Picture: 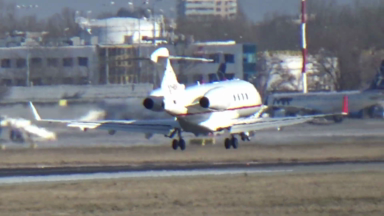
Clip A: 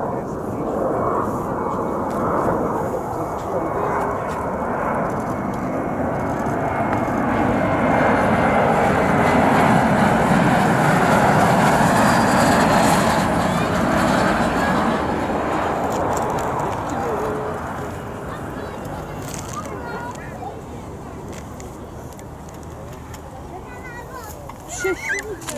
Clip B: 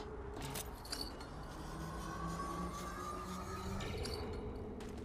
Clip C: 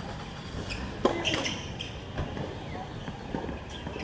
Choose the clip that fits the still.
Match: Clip A